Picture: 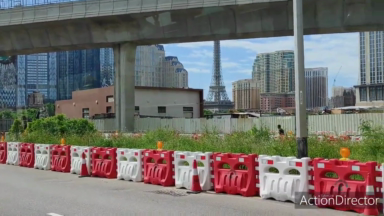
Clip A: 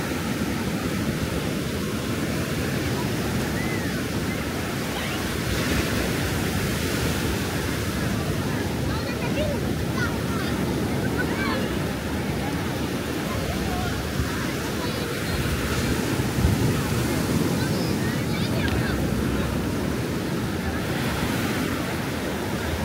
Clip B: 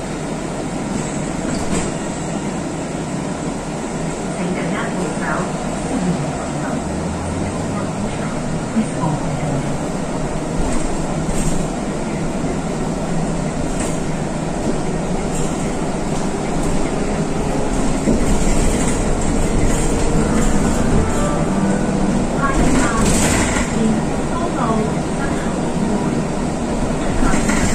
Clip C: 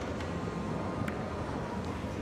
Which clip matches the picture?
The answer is B